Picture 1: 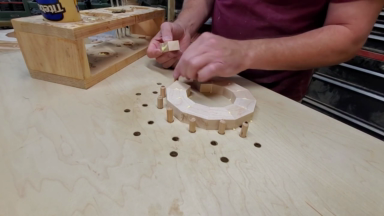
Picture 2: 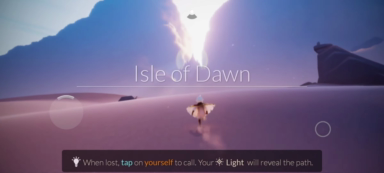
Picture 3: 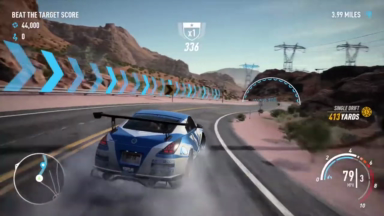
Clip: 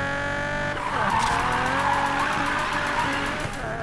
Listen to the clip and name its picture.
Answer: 3